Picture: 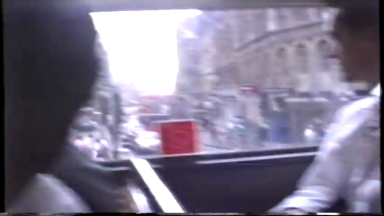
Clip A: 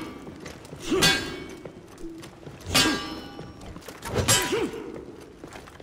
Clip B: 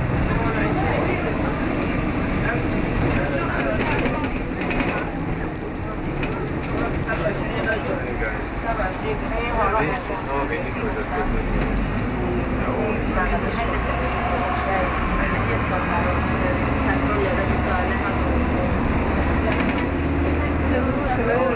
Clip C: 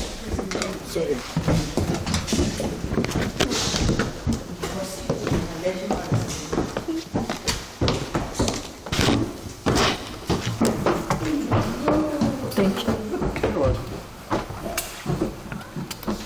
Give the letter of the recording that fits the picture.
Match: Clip B